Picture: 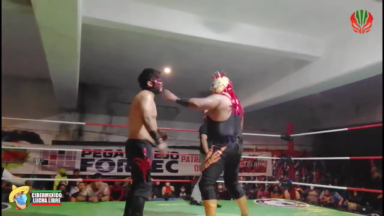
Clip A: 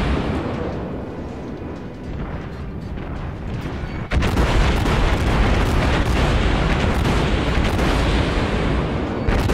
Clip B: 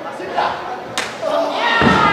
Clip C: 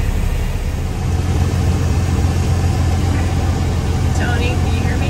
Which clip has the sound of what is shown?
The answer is B